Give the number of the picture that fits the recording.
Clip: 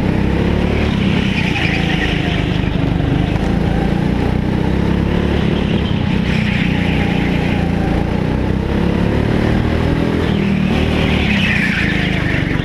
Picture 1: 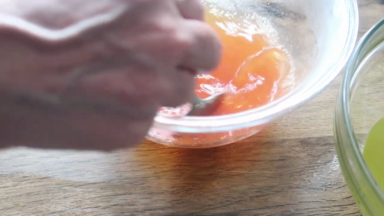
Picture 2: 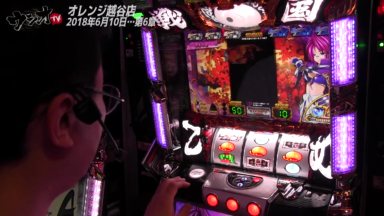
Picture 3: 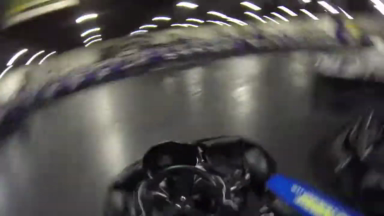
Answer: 3